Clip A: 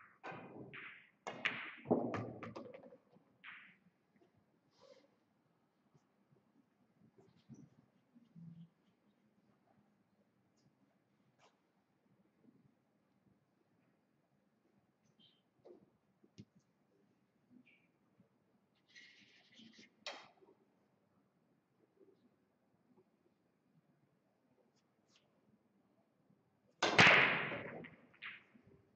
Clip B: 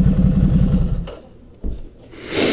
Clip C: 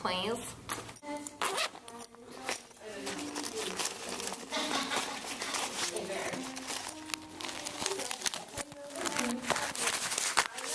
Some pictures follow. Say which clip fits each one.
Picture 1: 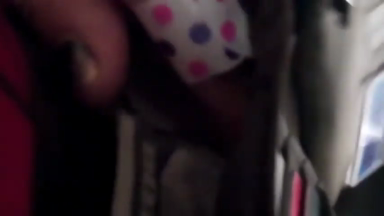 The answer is C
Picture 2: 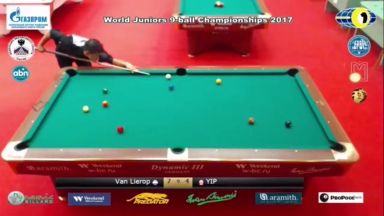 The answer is A